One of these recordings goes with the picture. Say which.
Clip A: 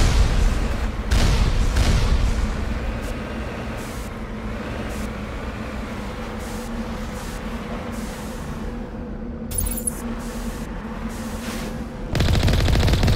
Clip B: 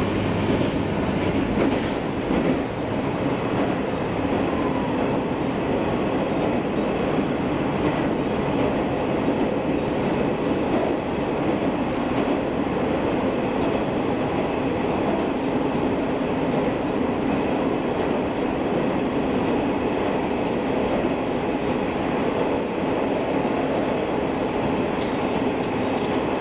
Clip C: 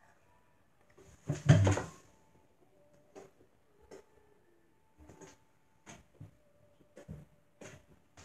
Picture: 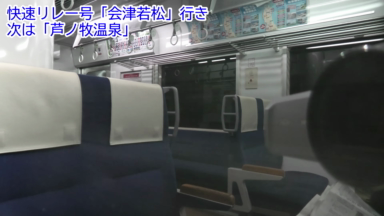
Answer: B